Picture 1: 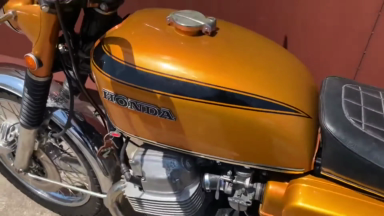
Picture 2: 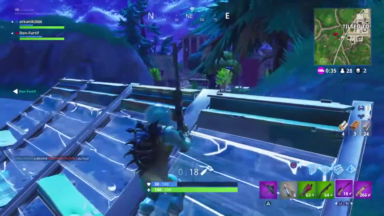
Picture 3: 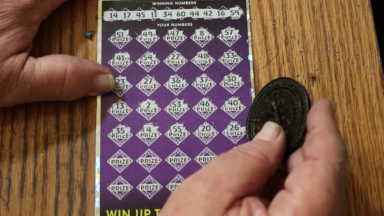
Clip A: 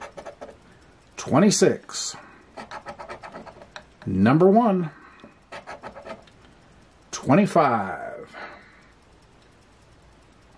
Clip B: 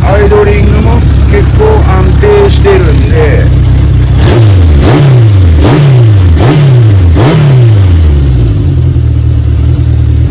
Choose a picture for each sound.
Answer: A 3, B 1